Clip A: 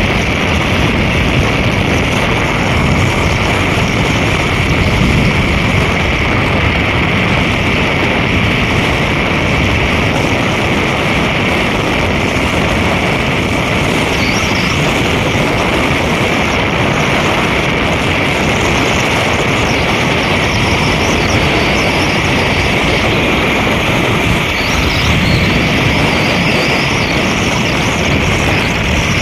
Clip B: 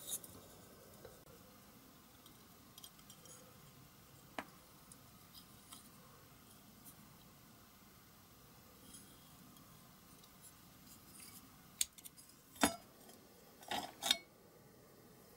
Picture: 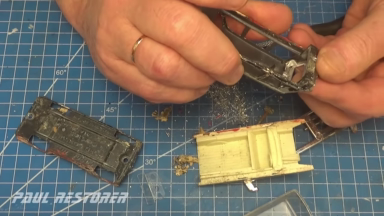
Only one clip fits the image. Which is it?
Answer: B